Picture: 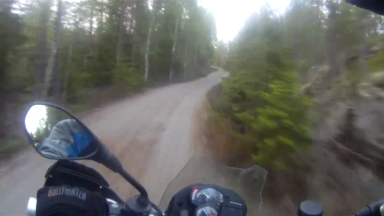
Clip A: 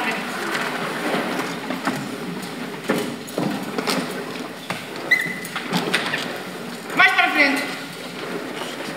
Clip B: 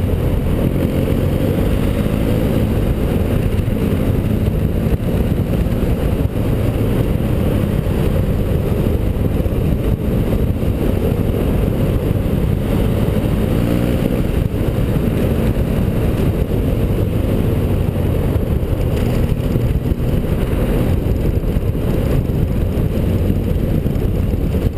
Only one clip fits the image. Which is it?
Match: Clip B